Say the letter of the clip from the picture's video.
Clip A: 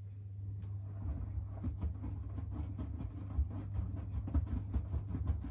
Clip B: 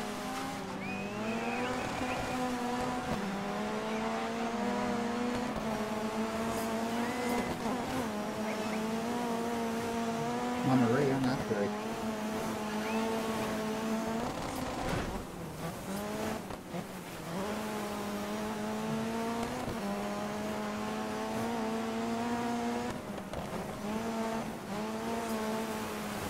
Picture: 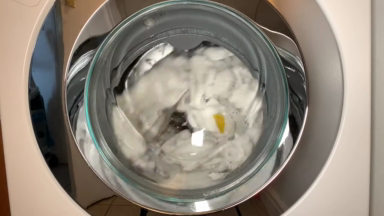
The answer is A